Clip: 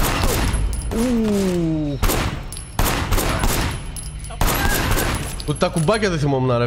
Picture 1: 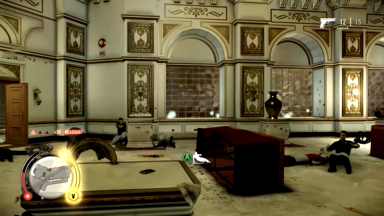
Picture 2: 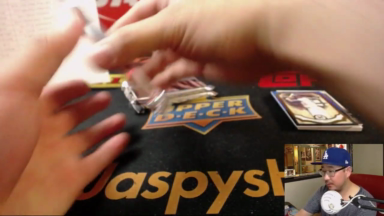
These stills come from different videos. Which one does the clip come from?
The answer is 1